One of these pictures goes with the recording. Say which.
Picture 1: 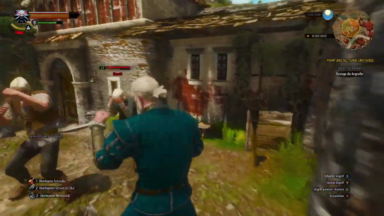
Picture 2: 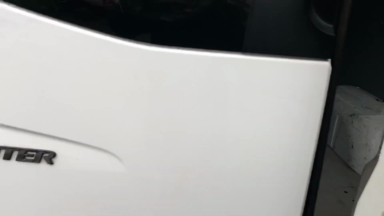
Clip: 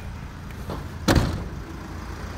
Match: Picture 2